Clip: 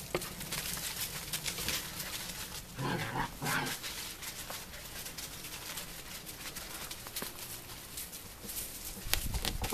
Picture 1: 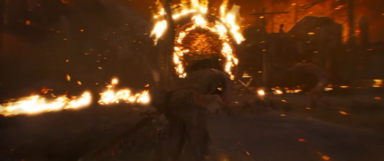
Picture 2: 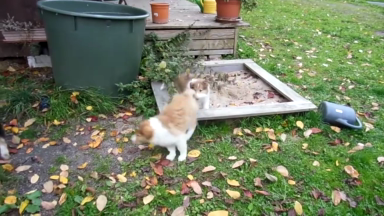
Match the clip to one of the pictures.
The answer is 2